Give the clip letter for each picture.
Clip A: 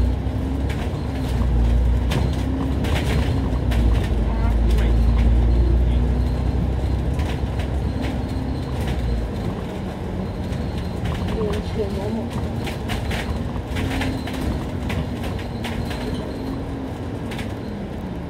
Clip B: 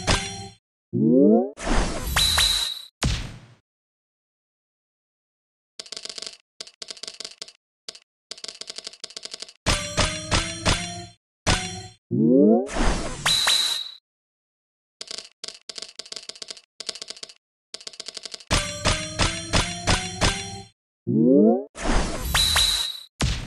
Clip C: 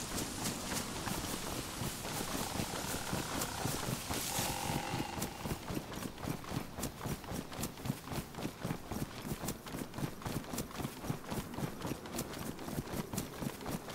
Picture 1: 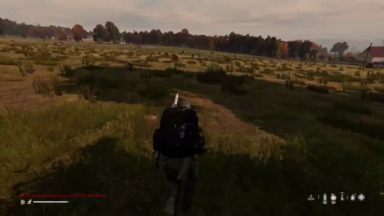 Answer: C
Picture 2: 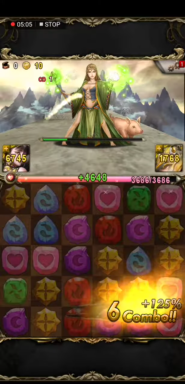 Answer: B